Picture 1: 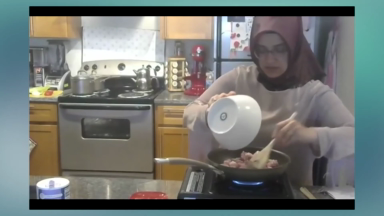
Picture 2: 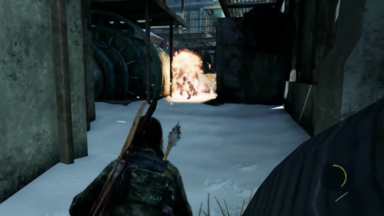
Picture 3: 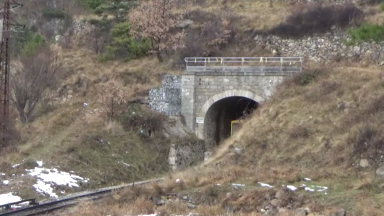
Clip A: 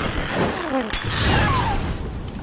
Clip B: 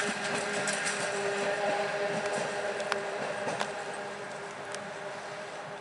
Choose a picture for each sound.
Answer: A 2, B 3